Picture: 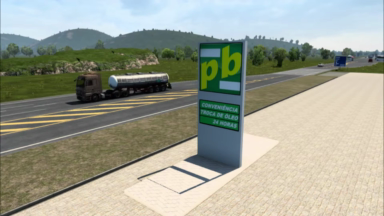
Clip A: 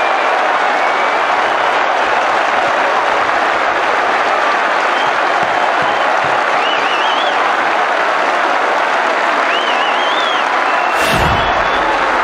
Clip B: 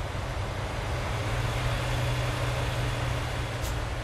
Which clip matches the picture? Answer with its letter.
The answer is B